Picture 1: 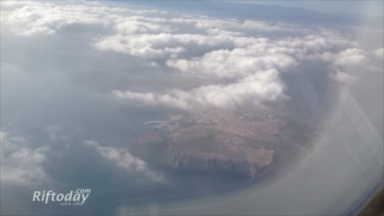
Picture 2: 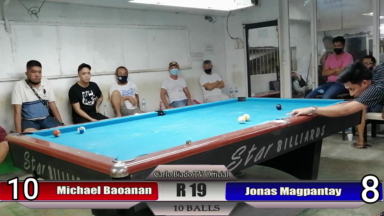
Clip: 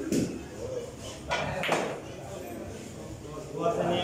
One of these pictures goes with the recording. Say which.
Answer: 2